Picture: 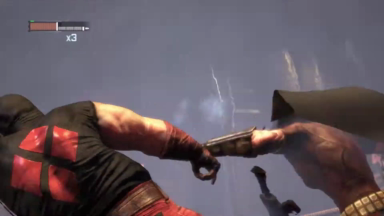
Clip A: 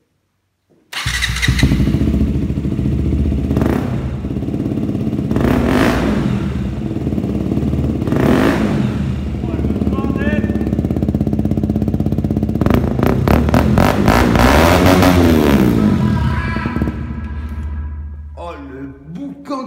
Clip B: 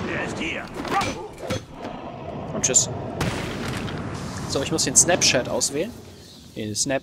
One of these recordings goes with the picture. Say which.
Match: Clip B